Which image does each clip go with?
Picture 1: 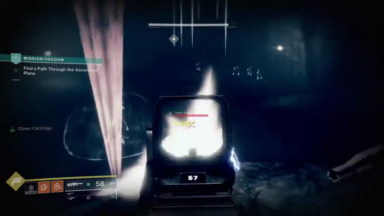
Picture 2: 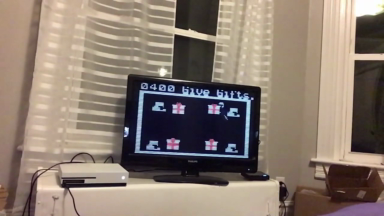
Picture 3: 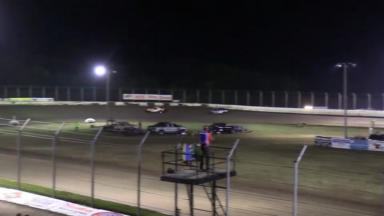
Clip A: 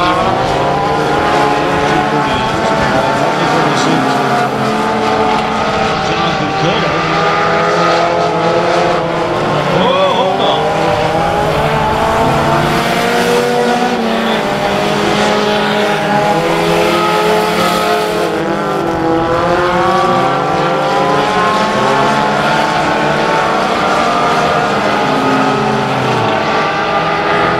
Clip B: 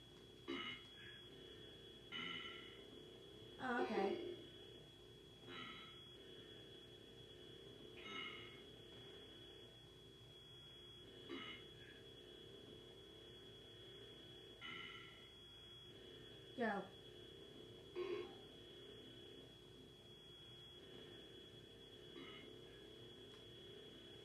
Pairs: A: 3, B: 2